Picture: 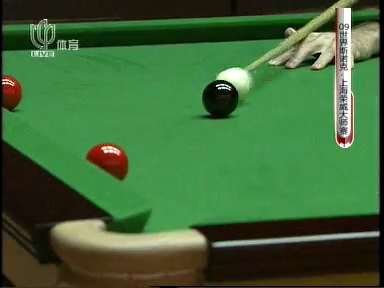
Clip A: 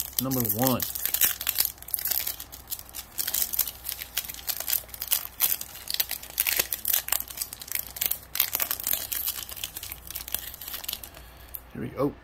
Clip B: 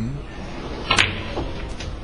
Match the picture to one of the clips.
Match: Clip B